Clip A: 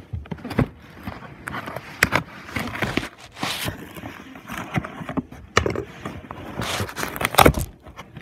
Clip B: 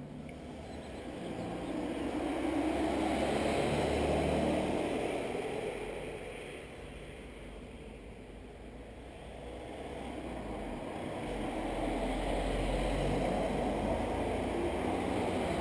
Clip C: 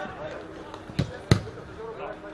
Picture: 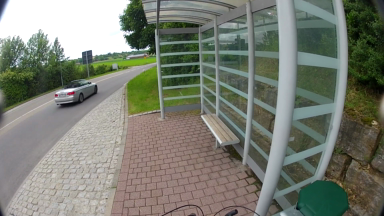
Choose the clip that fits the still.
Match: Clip B